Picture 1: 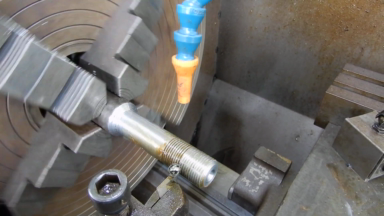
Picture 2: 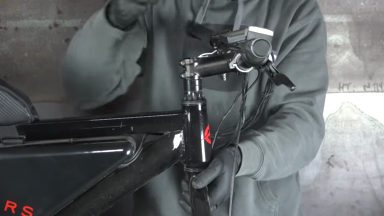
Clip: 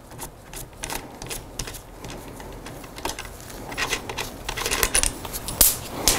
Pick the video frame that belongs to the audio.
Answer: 2